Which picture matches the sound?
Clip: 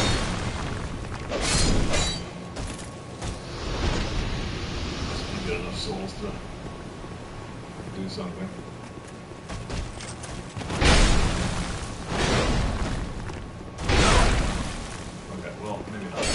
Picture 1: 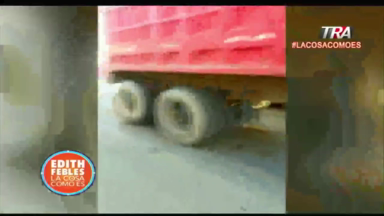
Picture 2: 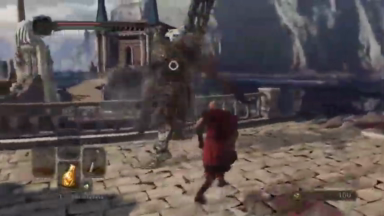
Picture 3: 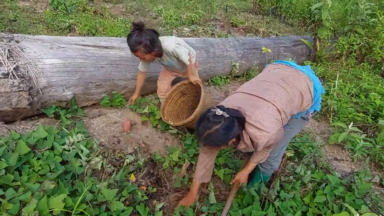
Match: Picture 2